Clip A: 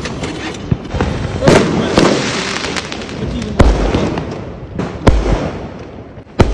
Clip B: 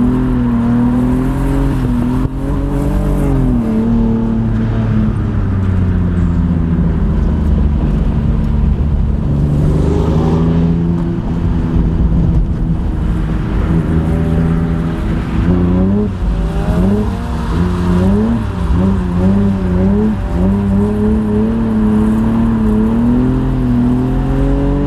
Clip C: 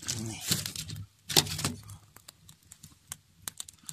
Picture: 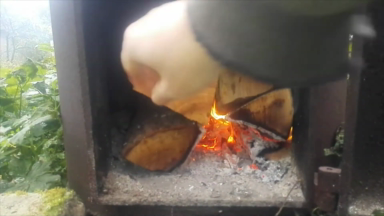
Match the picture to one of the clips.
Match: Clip C